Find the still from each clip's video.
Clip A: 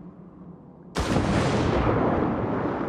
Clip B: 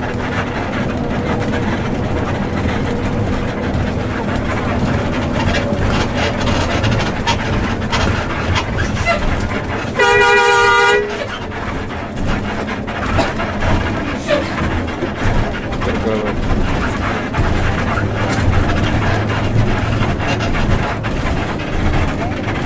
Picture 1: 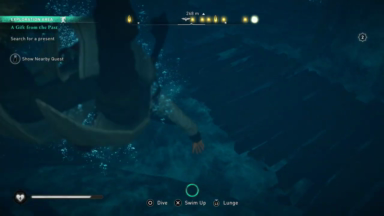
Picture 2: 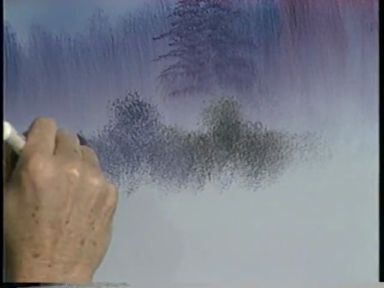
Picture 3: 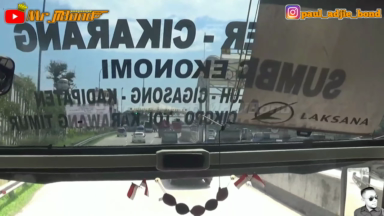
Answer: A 1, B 3